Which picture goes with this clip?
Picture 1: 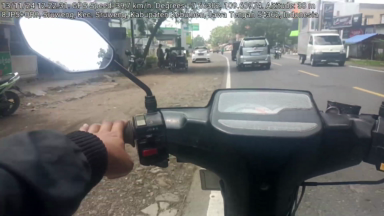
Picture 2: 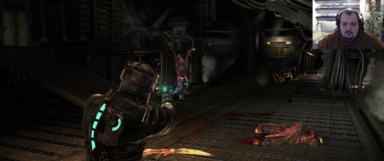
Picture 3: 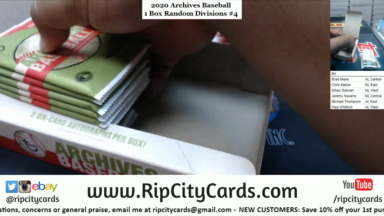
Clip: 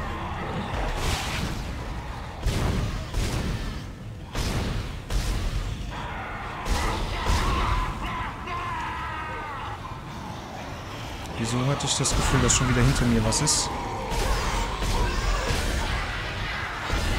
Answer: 2